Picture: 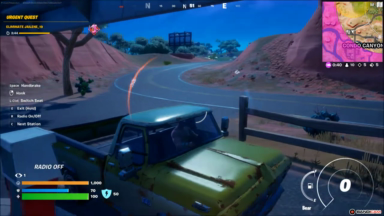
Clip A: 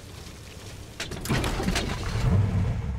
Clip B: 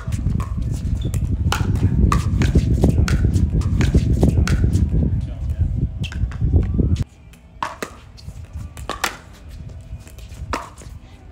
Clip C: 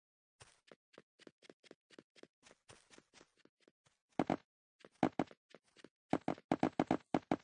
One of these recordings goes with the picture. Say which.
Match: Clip A